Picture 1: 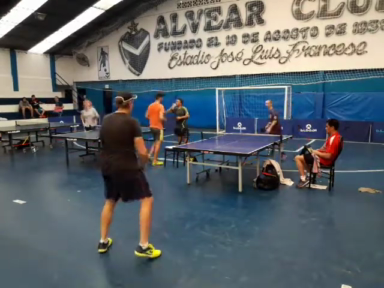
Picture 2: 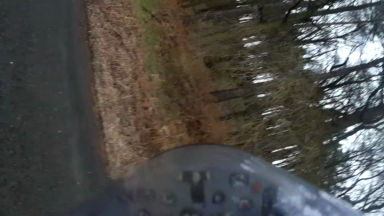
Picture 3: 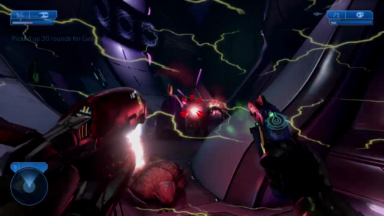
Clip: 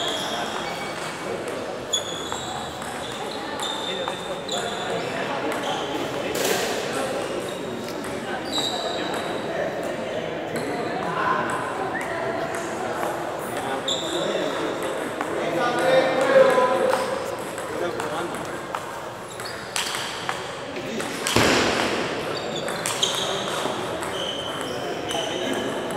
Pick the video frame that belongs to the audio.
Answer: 1